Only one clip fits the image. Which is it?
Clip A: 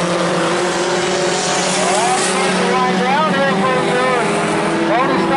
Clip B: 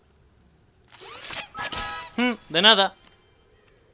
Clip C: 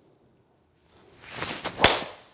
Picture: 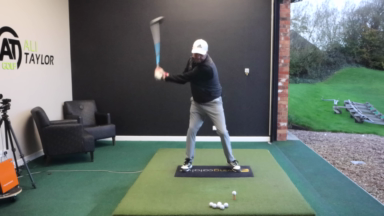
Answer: C